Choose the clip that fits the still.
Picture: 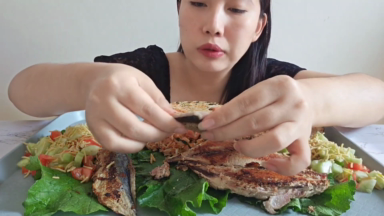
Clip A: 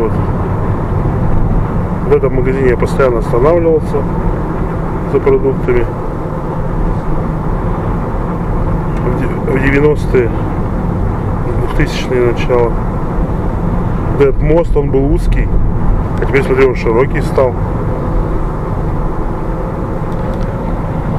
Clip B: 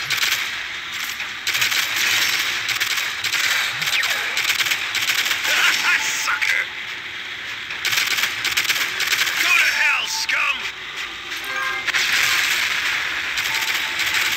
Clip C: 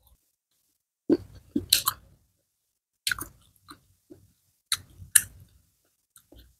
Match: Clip C